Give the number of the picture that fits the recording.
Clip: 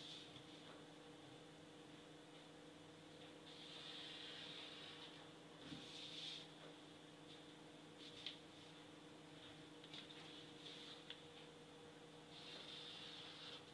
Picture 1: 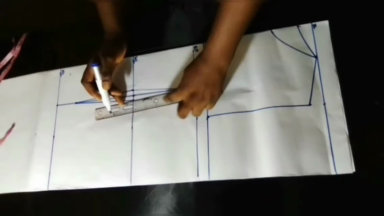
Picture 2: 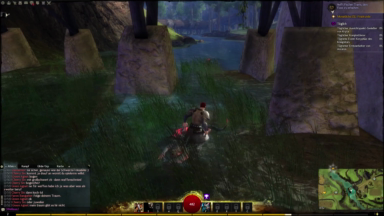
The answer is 1